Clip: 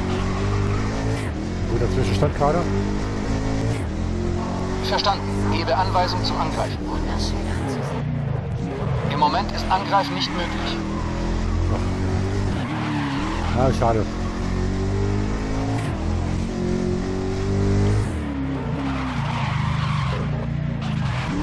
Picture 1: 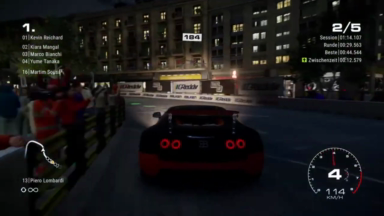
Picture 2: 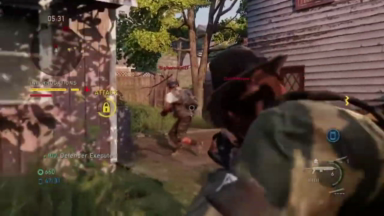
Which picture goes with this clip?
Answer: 1